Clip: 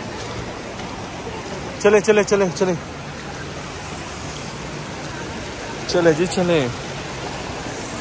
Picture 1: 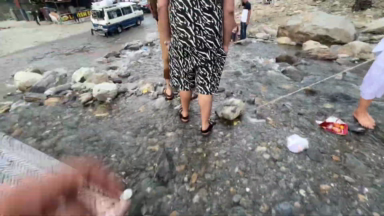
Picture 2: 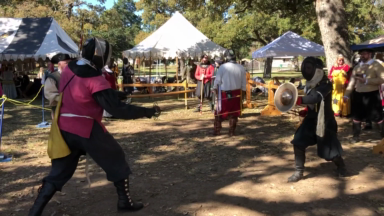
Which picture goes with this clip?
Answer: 1